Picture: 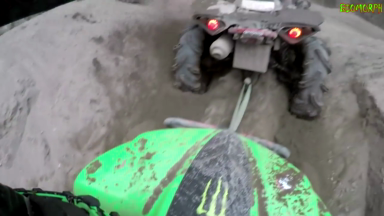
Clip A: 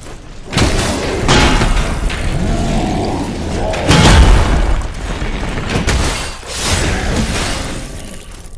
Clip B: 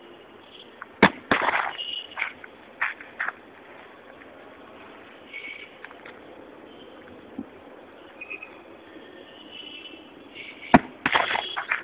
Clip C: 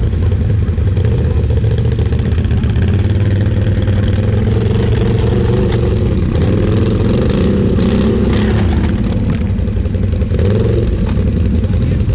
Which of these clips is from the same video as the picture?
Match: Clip C